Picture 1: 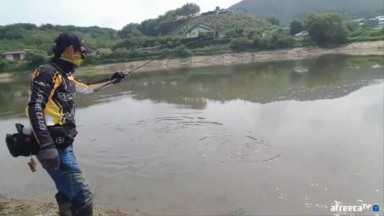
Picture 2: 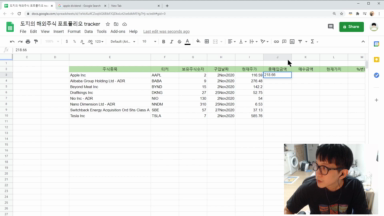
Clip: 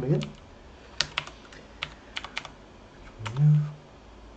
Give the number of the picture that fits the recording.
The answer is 2